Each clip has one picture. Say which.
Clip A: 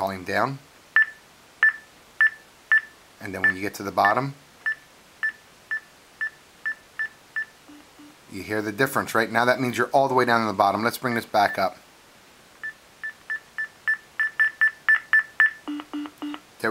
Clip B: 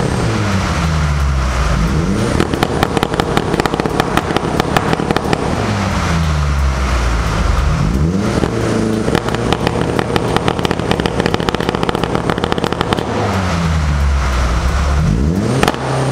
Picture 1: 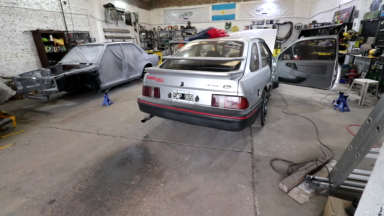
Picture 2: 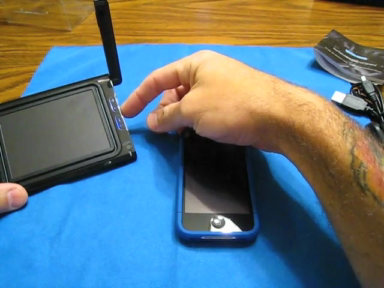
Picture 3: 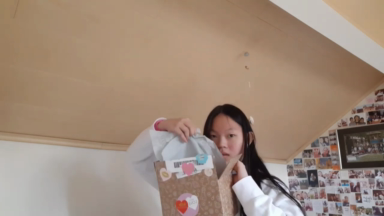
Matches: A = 2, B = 1